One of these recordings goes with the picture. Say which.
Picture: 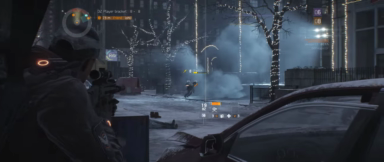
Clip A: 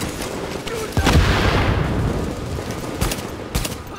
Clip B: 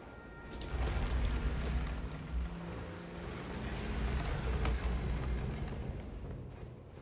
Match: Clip A